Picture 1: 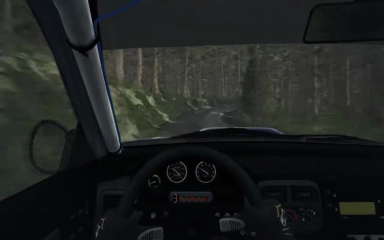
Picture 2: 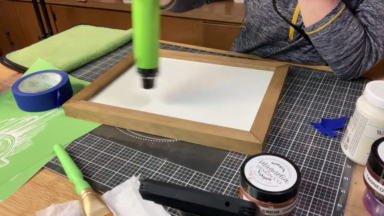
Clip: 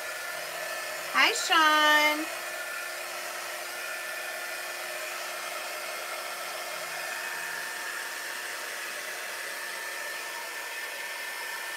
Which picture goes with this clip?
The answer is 2